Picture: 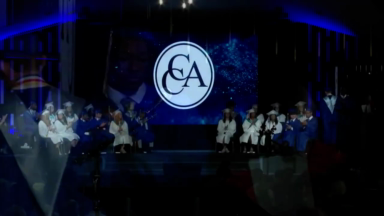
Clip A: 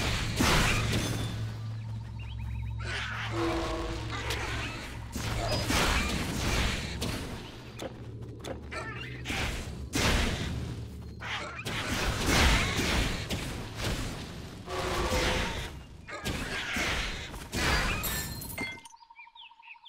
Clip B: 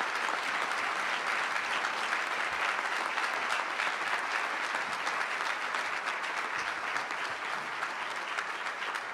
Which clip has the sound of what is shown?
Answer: B